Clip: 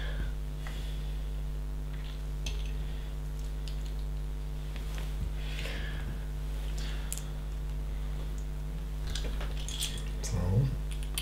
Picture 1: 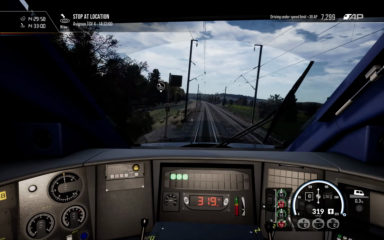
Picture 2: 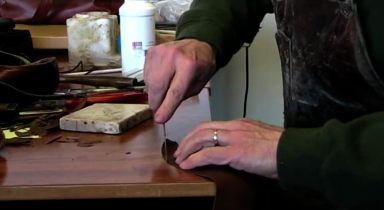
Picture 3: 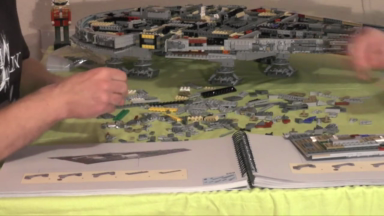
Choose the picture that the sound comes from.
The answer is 3